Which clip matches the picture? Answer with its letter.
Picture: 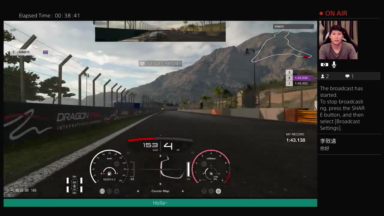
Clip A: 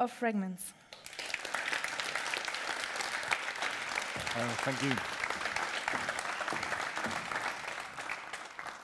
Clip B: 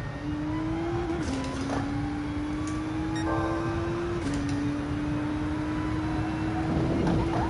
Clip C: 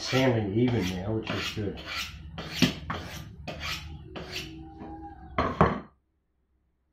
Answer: B